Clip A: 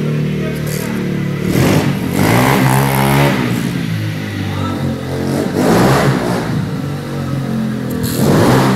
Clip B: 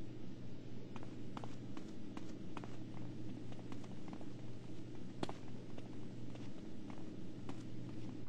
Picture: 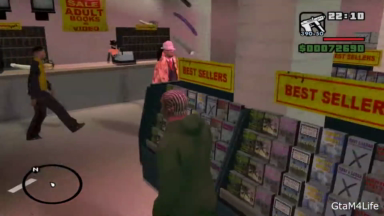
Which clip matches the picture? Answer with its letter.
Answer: B